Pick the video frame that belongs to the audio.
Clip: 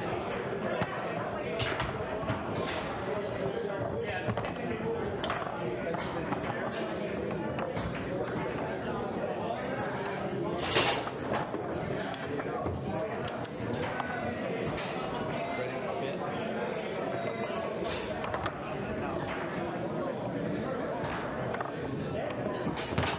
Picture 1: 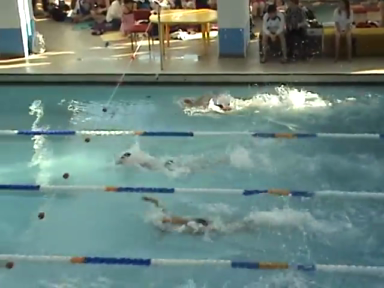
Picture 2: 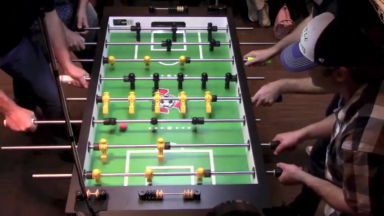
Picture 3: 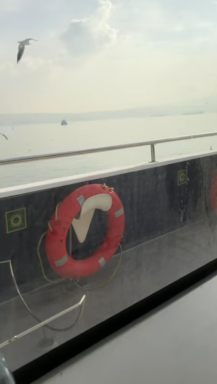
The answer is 2